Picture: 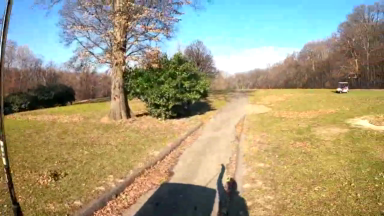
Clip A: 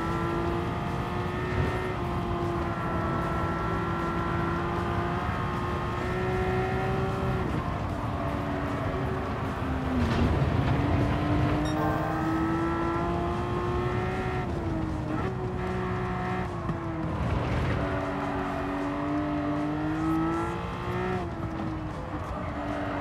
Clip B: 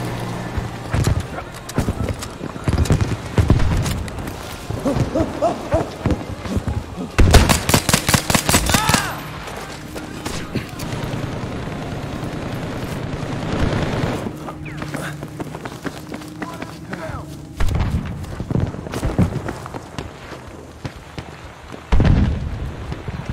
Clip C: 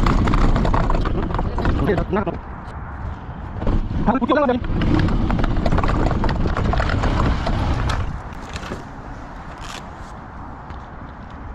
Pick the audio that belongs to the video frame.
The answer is C